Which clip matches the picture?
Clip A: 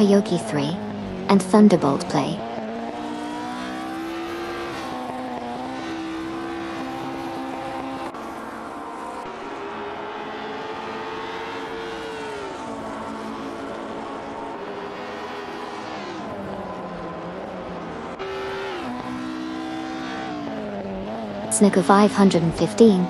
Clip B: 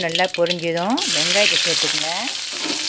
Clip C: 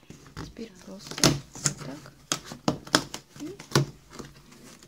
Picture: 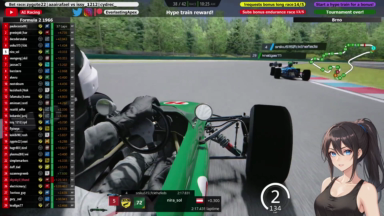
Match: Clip A